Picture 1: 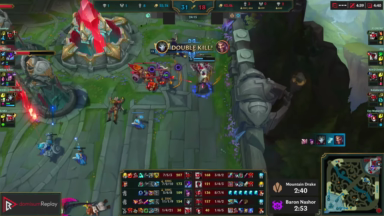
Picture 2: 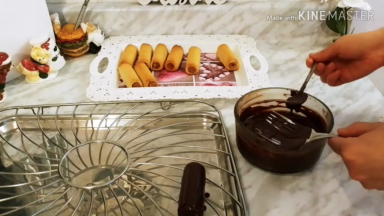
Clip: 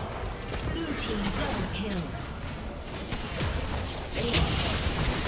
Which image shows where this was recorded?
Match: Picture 1